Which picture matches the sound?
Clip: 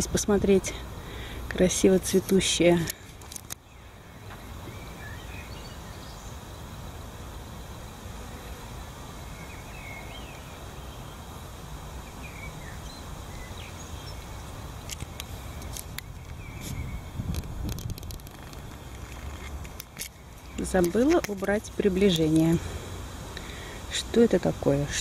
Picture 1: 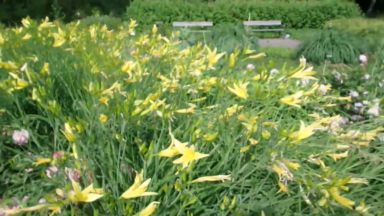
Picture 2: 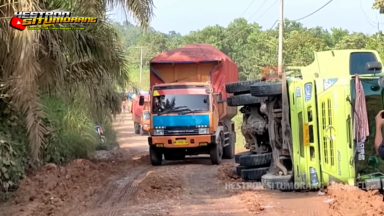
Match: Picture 1